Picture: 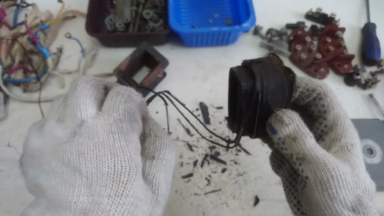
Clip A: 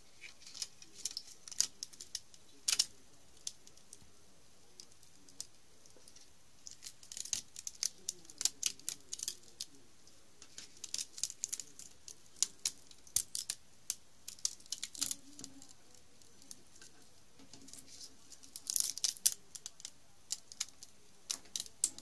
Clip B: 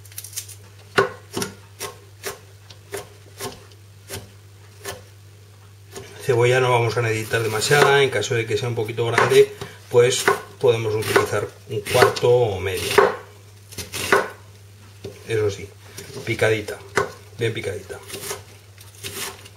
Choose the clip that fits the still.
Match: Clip A